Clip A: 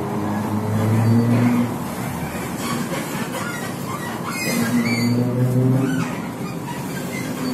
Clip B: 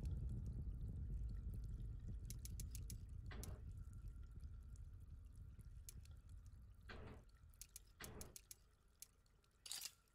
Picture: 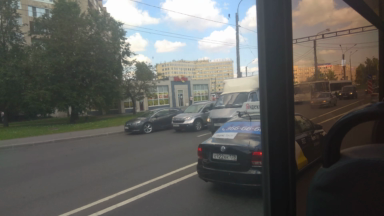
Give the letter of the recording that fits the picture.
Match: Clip A